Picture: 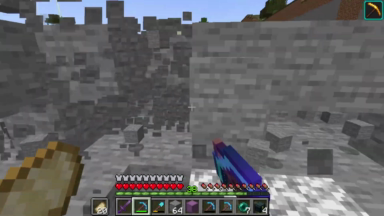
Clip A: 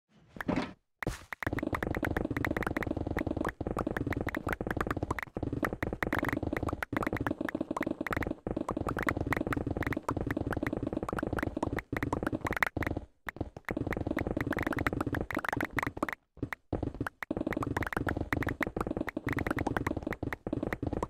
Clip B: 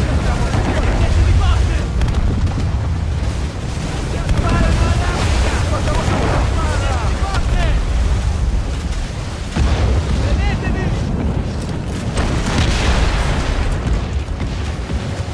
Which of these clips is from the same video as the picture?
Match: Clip A